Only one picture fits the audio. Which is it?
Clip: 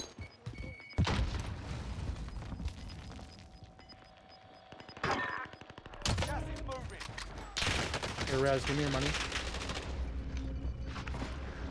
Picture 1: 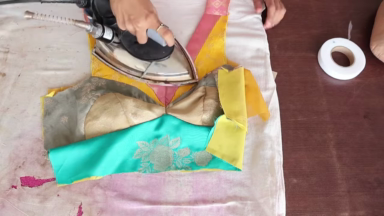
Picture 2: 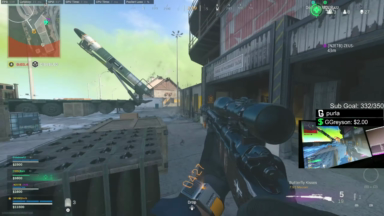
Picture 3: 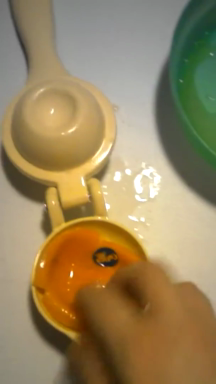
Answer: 2